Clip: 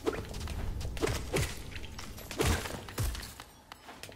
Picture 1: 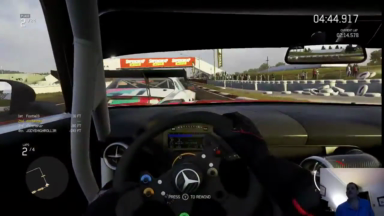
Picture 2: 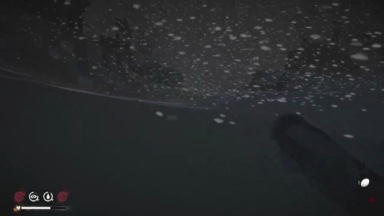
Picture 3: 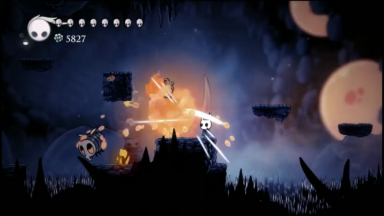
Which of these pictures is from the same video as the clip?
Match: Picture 3